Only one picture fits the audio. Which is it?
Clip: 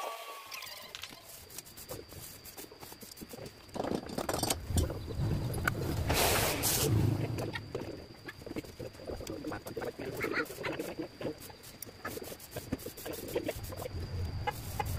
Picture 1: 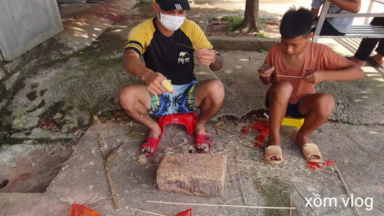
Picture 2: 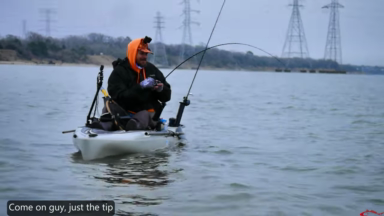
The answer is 1